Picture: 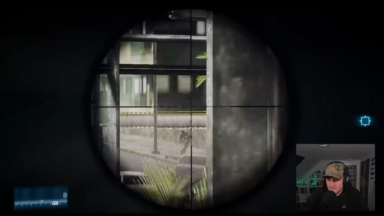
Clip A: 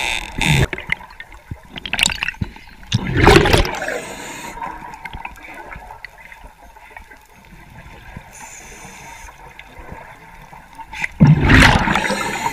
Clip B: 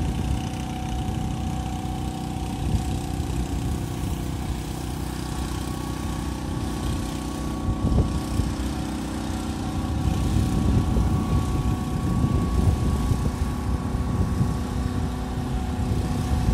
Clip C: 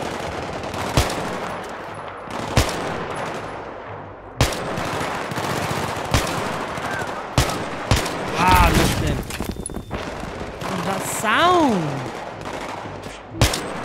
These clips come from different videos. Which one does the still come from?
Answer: C